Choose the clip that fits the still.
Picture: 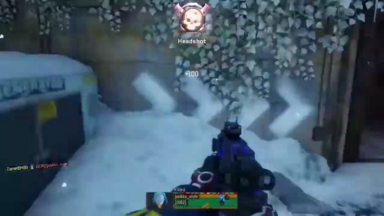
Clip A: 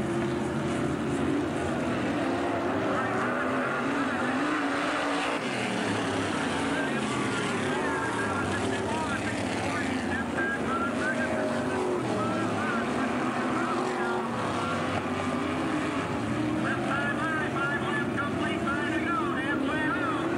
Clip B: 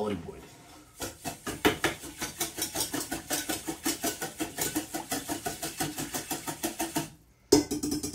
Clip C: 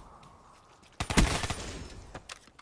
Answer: C